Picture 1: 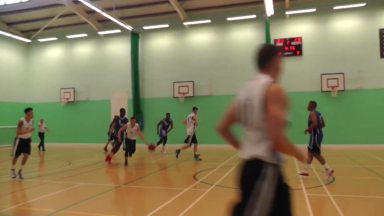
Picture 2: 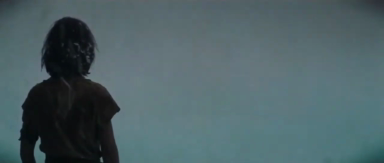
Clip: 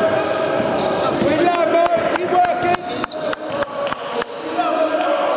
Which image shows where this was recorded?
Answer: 1